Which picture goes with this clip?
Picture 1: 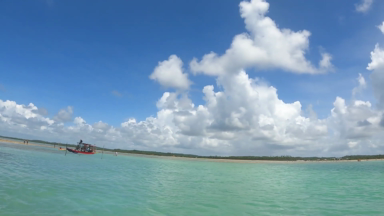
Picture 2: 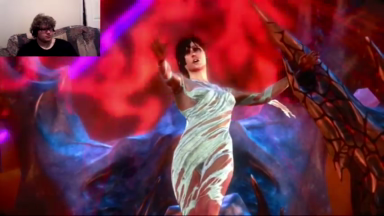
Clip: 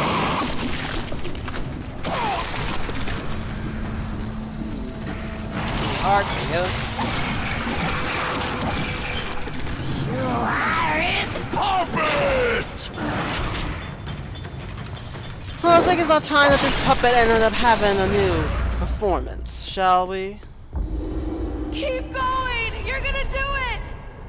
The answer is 2